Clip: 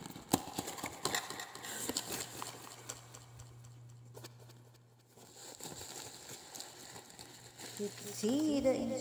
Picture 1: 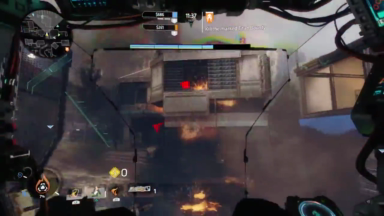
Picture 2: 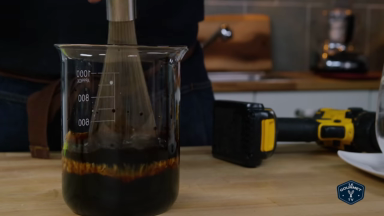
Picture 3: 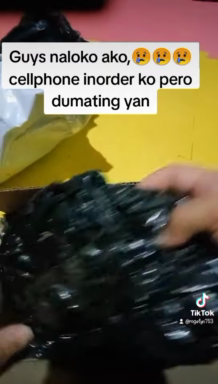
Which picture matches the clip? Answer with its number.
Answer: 3